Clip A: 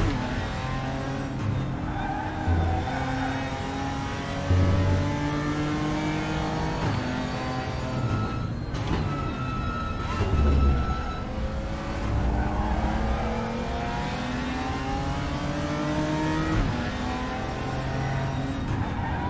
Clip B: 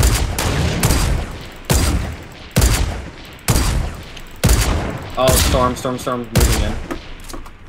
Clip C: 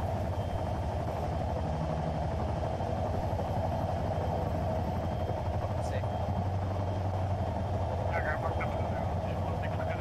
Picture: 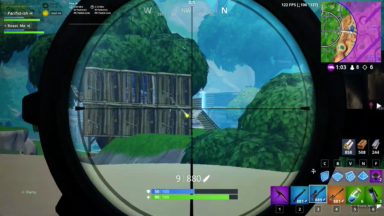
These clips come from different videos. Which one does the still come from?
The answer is B